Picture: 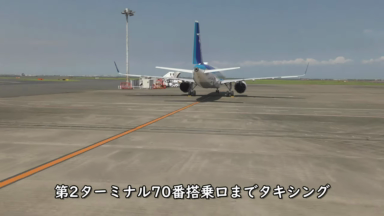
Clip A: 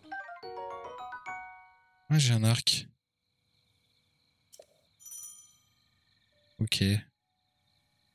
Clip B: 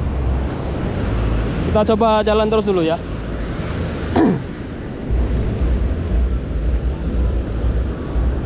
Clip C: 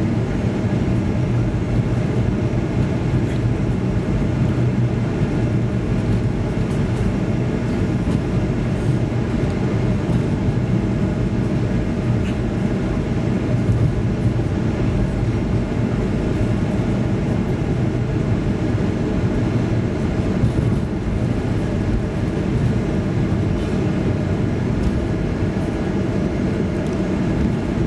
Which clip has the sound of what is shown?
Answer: C